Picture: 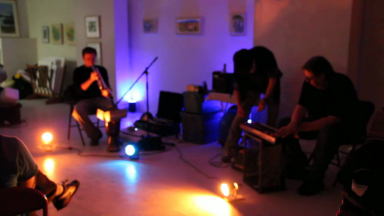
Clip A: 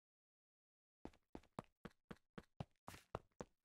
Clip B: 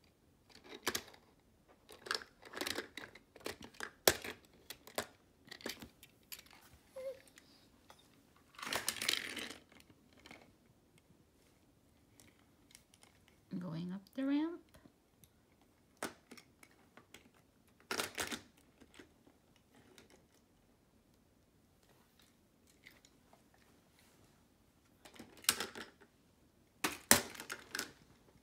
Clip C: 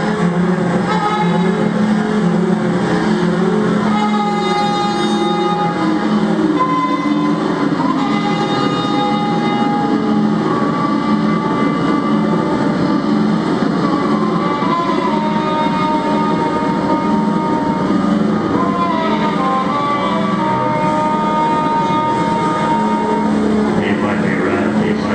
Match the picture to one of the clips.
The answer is C